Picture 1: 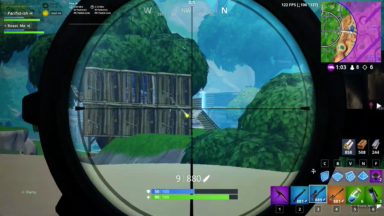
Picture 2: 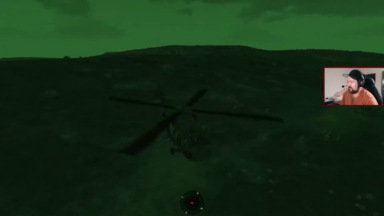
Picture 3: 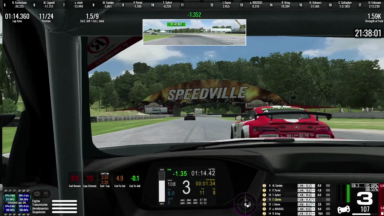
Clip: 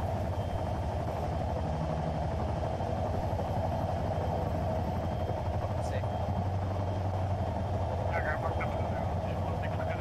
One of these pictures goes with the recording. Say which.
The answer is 2